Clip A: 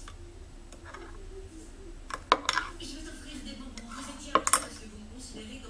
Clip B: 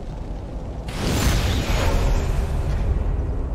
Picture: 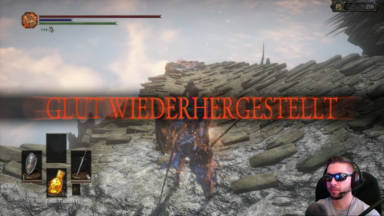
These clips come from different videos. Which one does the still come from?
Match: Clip B